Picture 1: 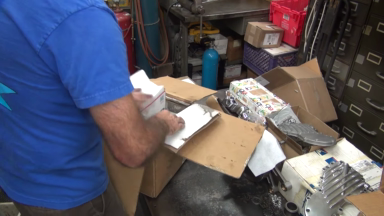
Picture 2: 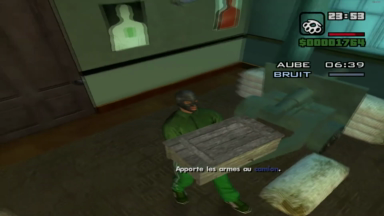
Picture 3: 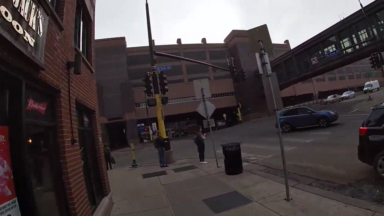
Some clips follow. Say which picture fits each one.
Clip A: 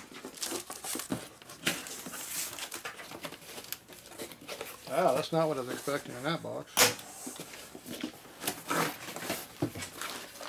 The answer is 1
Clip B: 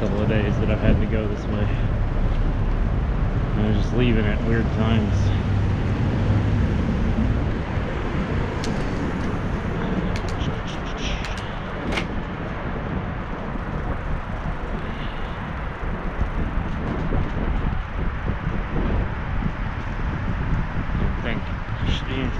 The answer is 3